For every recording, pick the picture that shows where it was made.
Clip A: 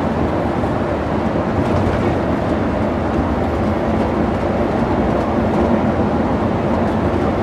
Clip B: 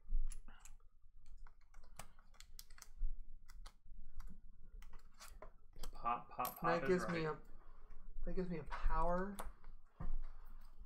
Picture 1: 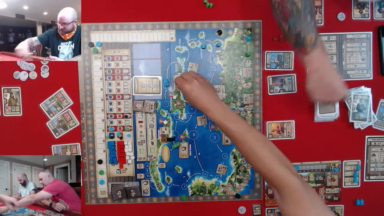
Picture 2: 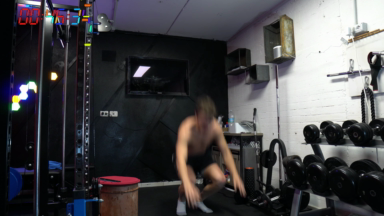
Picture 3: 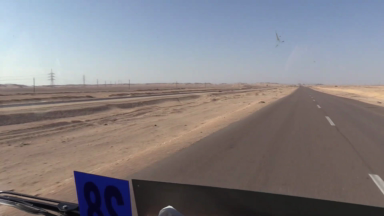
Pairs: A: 3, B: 1